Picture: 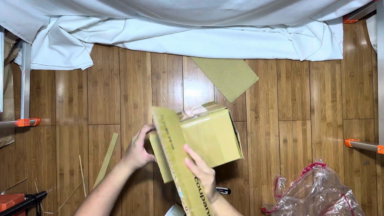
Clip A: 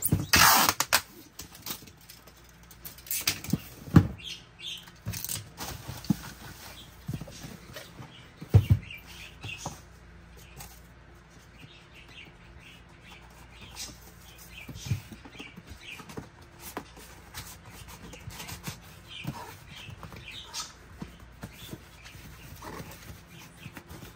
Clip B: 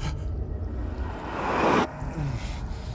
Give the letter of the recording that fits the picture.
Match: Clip A